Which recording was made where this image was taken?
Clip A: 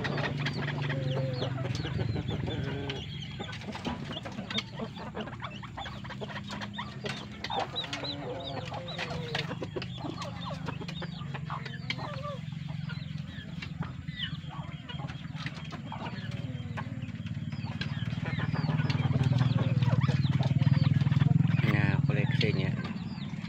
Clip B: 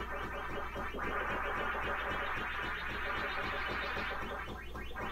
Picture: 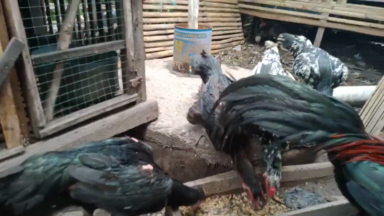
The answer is A